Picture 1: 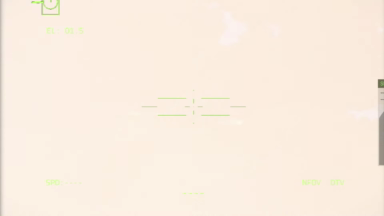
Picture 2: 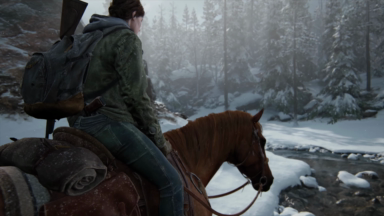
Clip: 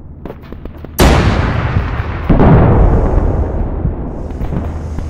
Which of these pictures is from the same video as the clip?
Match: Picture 1